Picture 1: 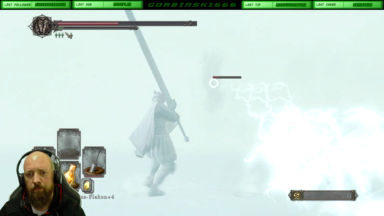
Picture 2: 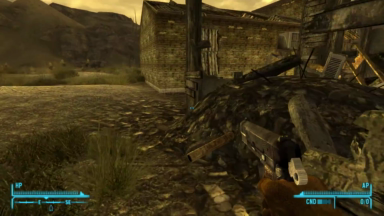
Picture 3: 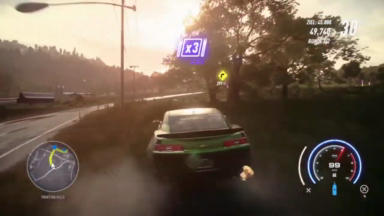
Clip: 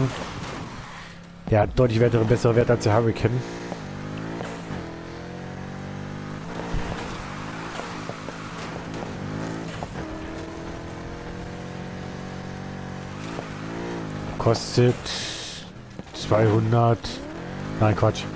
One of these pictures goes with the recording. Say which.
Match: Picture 3